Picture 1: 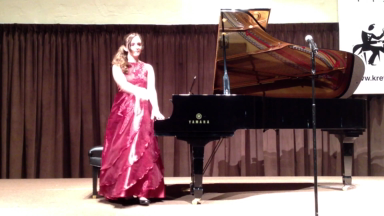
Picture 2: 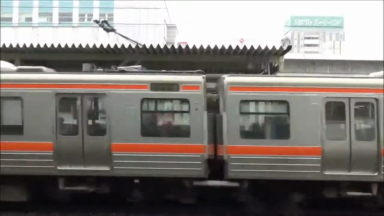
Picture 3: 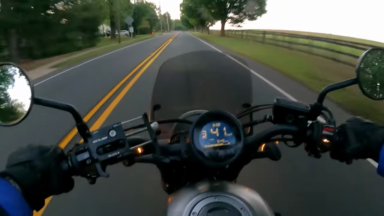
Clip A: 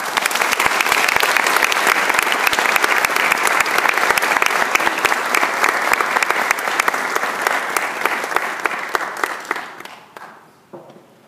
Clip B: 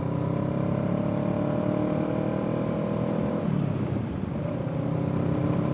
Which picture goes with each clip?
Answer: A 1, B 3